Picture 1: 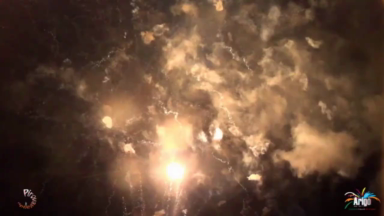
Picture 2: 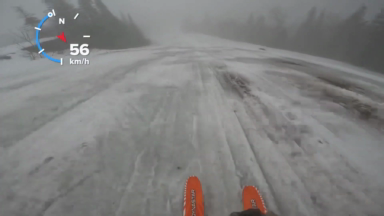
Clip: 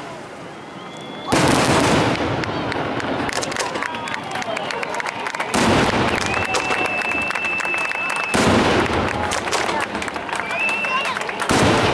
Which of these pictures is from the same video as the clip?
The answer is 1